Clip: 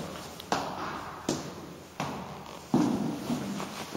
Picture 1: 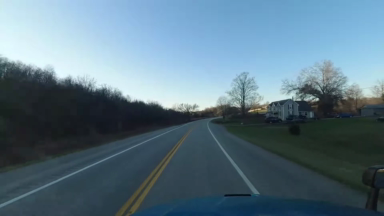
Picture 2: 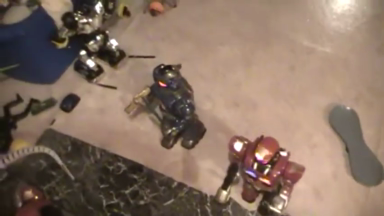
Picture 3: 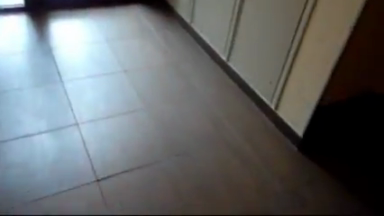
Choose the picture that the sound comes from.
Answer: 3